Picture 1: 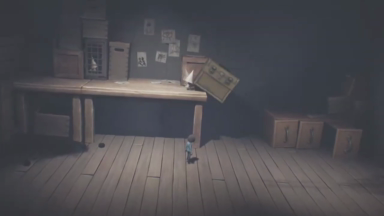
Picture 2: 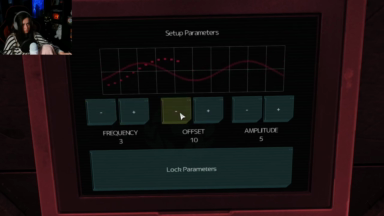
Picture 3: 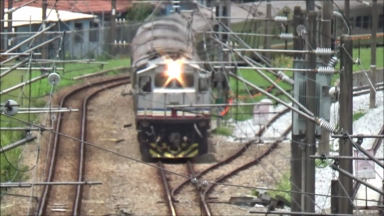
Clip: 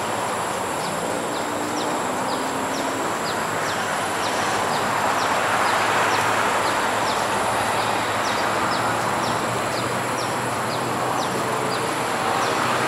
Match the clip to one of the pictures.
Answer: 3